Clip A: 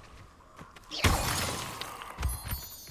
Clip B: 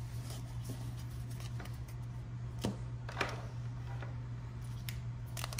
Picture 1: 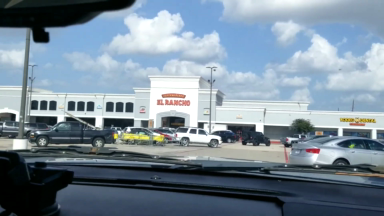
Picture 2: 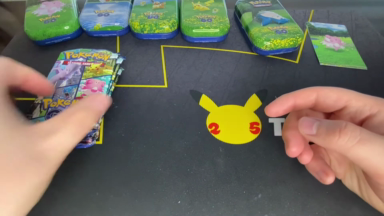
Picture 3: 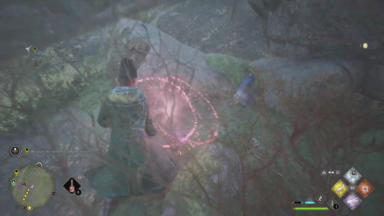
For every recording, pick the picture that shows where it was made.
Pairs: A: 3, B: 2